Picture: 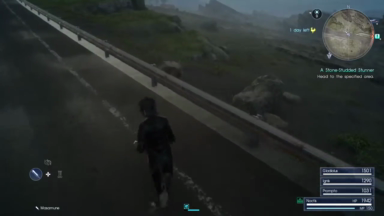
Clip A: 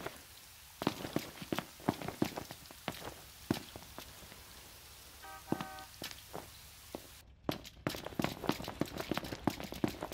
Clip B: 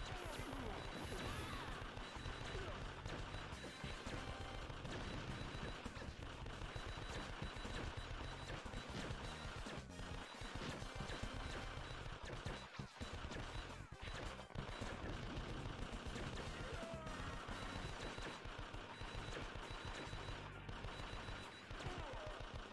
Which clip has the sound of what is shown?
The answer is A